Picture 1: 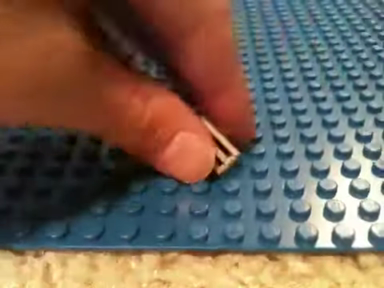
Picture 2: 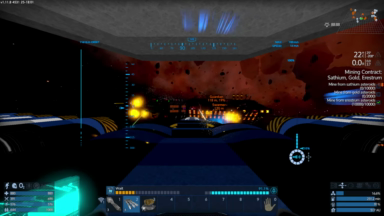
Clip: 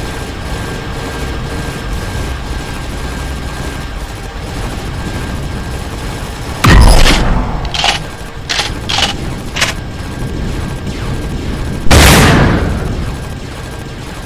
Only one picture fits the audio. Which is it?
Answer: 2